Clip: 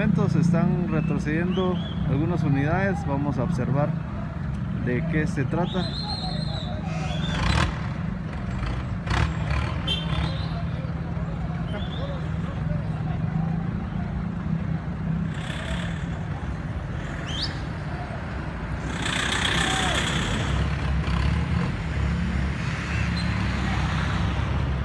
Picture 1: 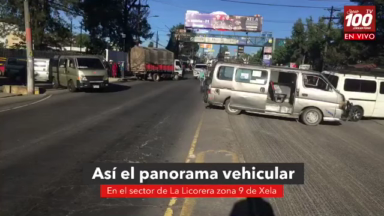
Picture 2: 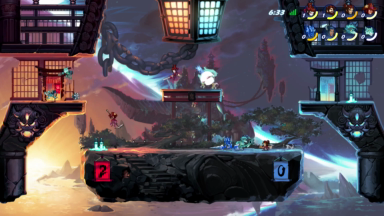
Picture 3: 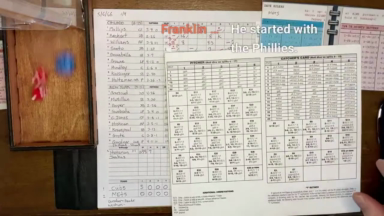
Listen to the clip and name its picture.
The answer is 1